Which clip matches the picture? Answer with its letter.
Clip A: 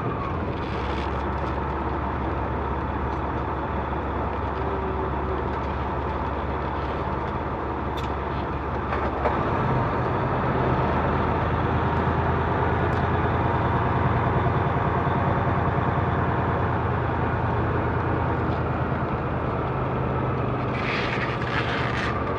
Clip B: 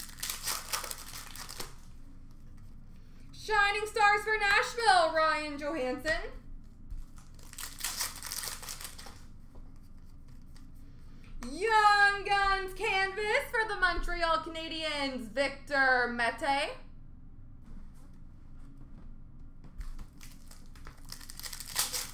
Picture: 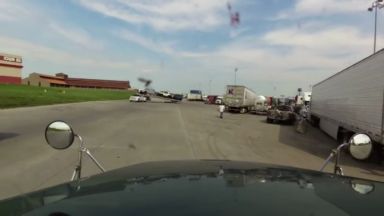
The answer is A